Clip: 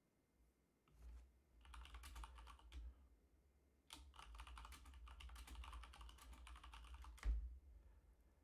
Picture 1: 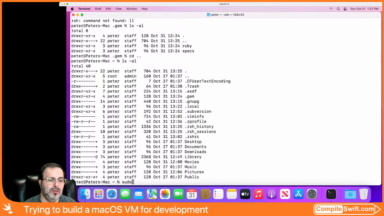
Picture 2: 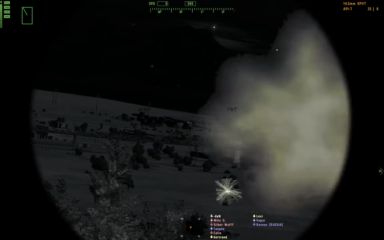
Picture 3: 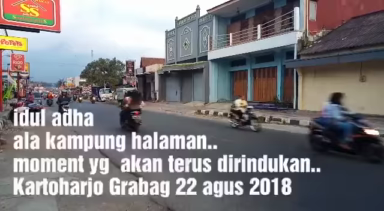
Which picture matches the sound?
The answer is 1